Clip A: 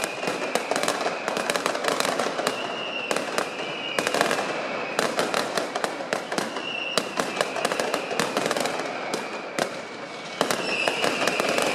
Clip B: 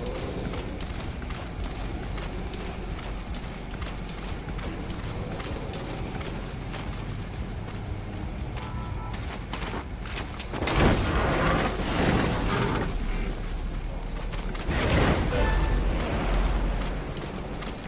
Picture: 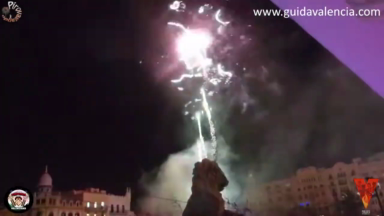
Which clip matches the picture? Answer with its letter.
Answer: A